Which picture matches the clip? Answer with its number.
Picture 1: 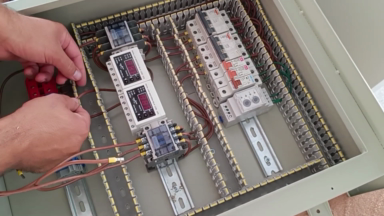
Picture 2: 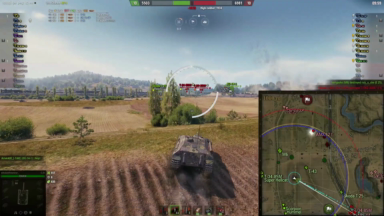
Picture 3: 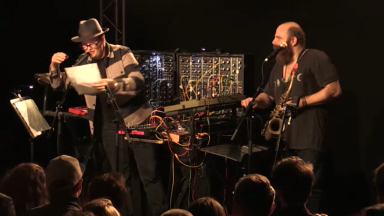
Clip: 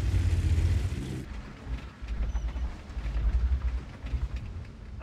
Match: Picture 2